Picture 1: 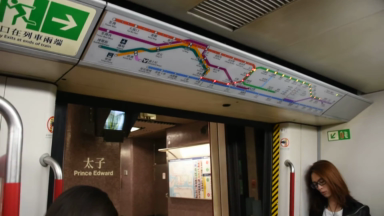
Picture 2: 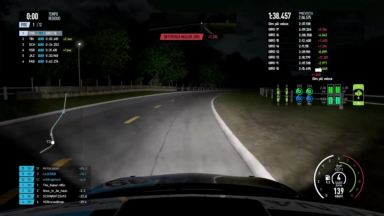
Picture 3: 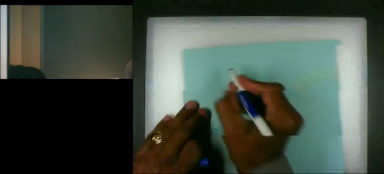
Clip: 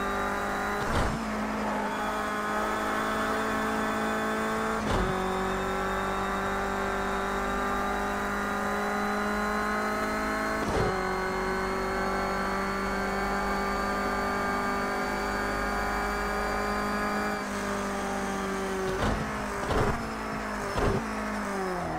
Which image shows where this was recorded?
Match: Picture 2